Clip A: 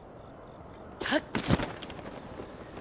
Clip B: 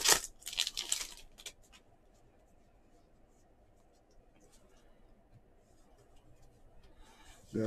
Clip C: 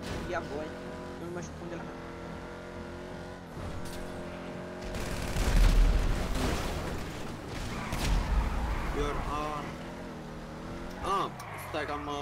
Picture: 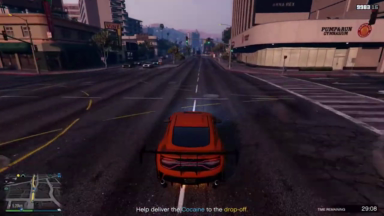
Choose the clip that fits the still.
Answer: C